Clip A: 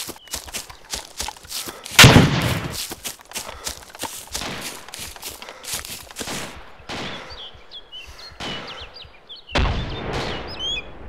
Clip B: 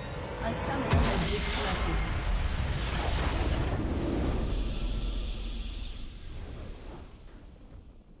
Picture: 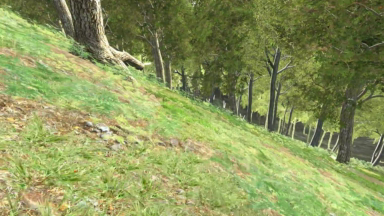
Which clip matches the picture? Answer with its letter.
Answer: A